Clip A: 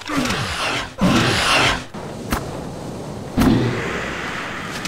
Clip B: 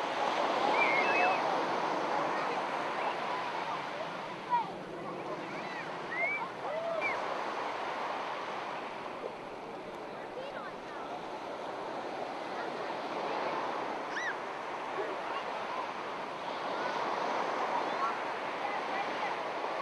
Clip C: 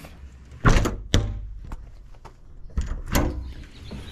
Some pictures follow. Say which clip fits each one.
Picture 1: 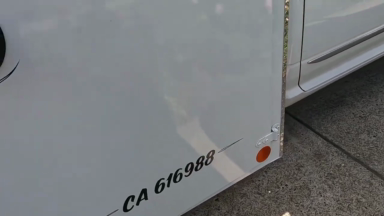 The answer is C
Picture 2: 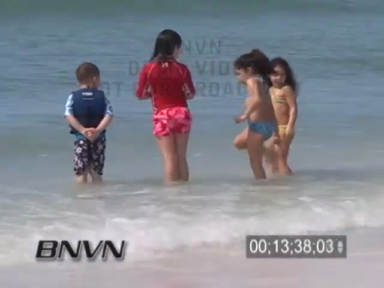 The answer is B